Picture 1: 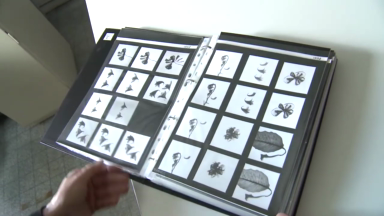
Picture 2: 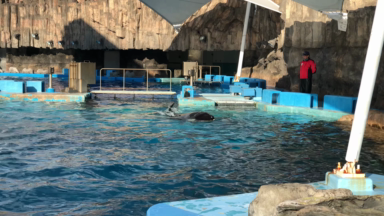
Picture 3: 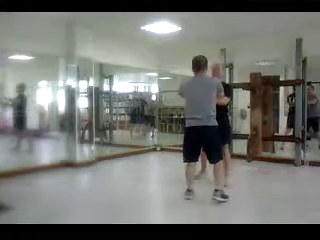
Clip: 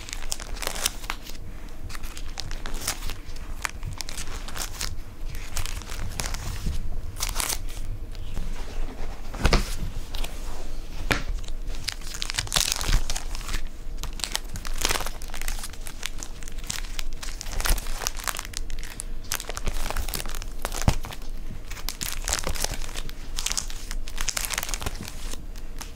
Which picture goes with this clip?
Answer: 1